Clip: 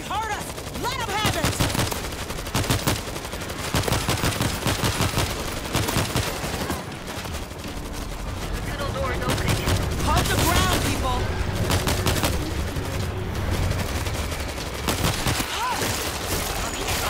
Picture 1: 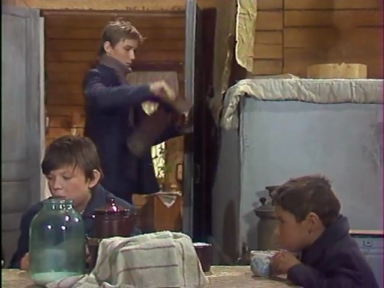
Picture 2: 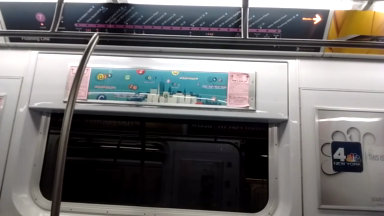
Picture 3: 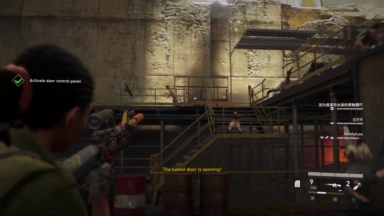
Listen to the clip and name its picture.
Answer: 3